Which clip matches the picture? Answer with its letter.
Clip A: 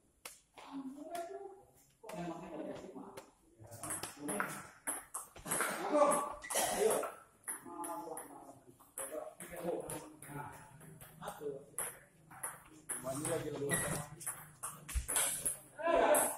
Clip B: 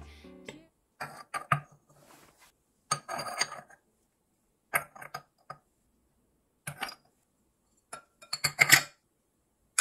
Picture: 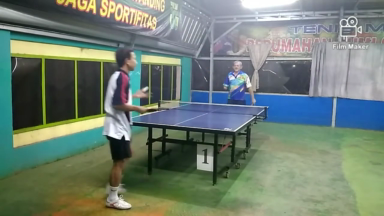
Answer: A